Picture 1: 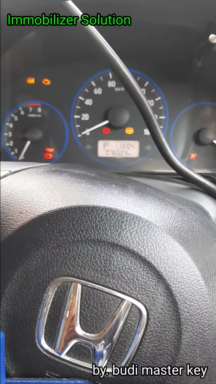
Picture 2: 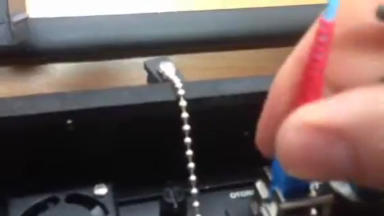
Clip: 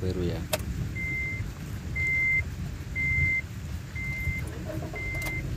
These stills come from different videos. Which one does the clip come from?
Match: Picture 1